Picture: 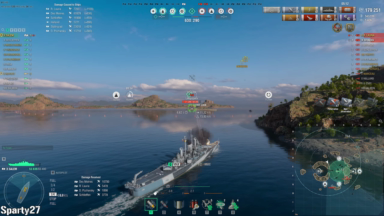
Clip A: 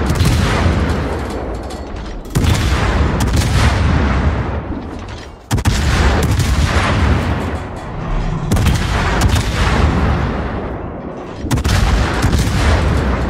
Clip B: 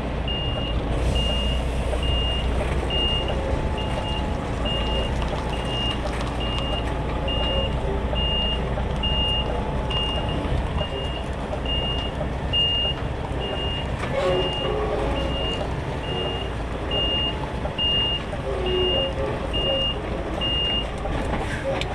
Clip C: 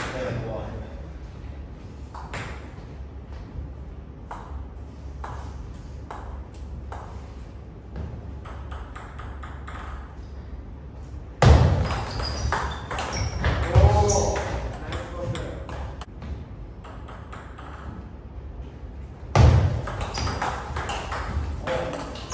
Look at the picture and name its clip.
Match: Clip A